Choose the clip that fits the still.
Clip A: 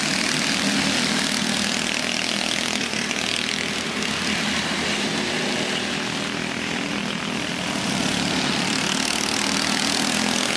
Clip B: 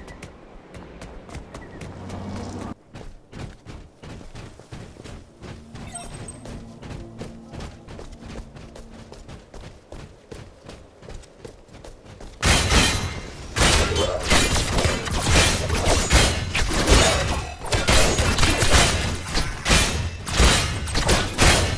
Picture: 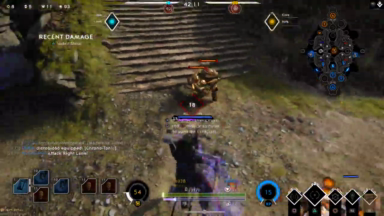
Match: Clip B